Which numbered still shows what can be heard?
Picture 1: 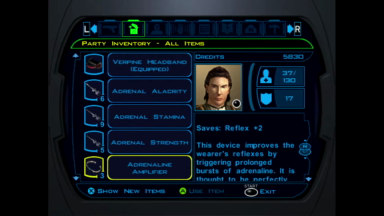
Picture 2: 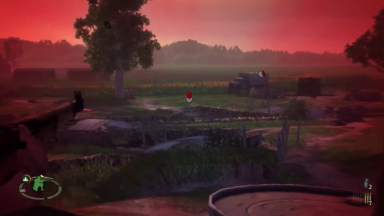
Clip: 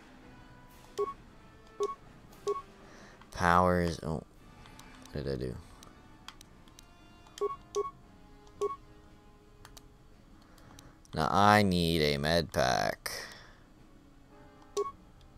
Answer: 1